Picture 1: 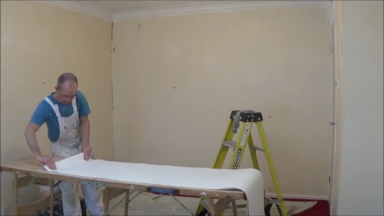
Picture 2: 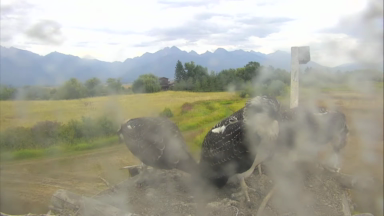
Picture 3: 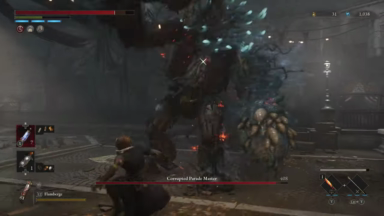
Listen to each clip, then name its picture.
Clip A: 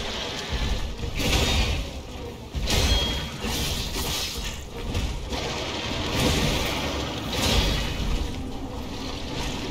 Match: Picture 3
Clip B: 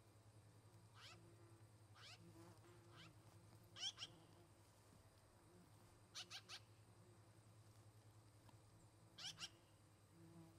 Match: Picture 2